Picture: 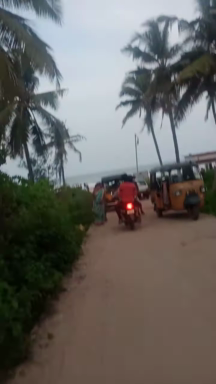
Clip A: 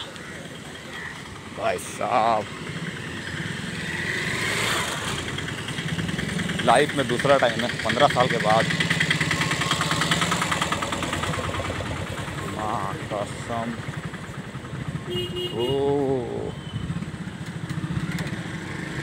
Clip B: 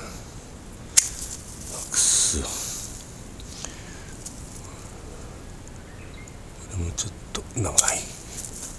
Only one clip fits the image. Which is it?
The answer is A